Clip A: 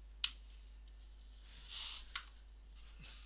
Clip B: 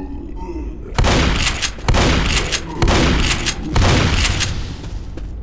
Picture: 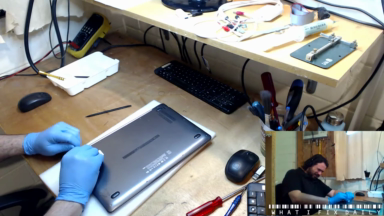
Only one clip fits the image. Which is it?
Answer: A